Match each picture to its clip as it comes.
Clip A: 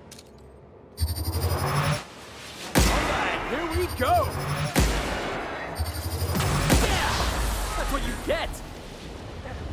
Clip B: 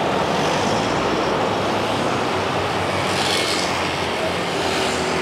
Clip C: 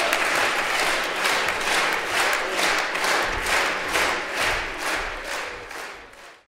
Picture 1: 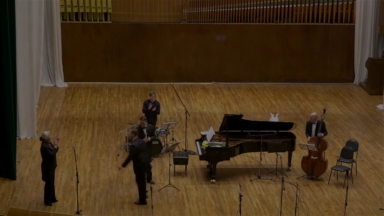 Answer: C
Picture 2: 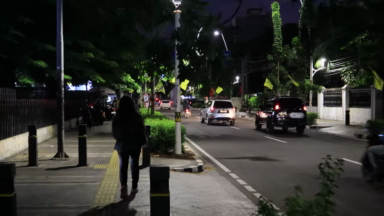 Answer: B